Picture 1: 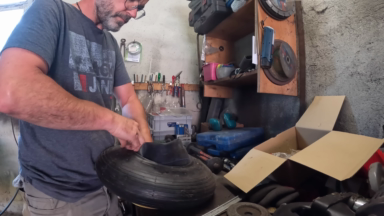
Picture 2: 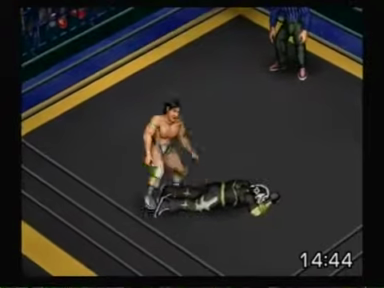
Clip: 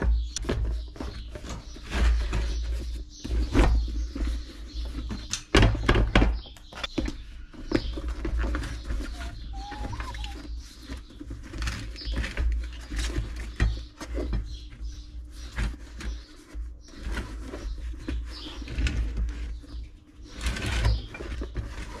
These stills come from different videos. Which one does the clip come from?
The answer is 1